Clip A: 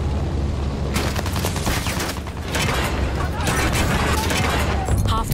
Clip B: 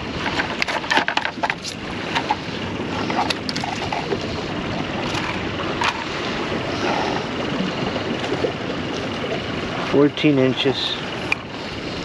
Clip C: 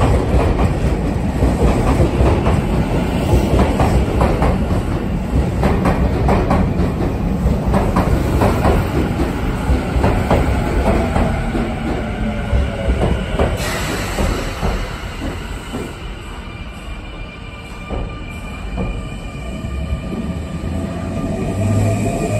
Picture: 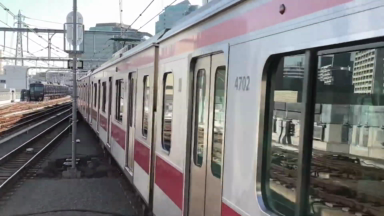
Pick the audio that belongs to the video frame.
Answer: C